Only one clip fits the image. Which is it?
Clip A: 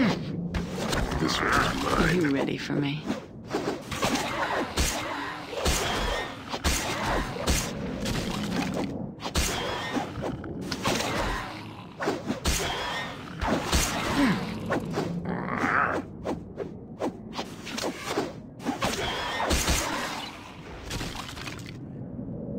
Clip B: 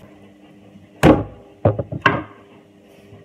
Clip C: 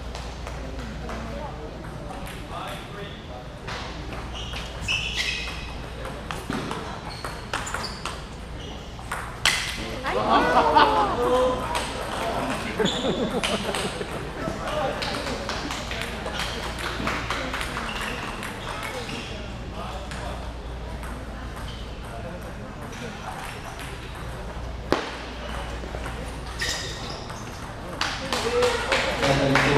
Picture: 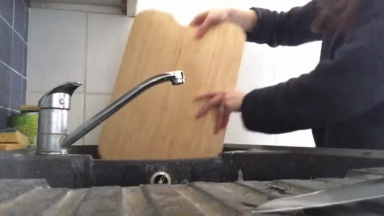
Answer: B